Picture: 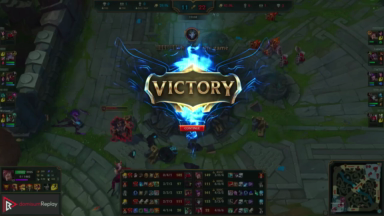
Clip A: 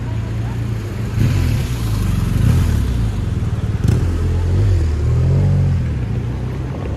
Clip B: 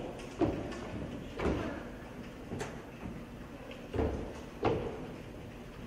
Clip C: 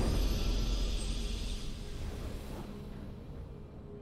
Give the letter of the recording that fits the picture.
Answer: C